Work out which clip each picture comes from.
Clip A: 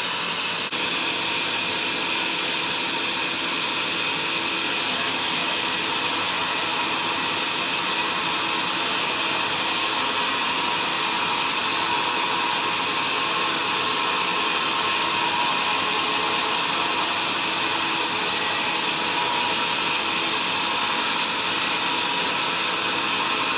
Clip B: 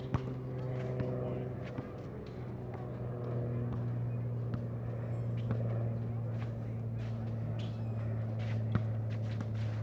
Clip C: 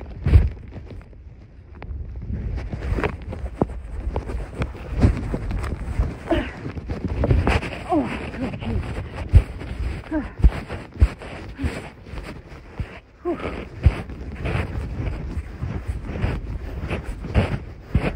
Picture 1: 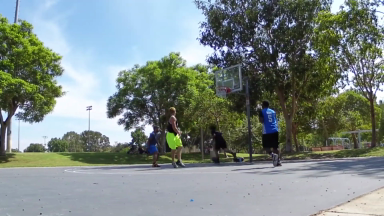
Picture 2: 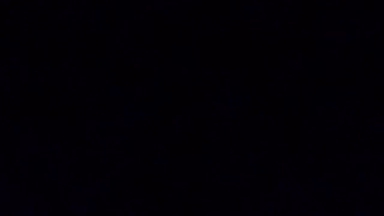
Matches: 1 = B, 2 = C